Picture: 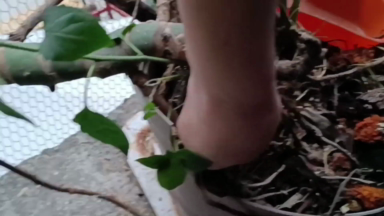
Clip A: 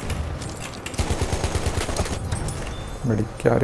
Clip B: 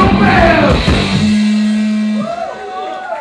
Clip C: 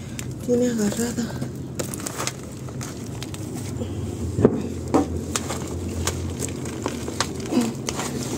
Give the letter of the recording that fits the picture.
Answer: C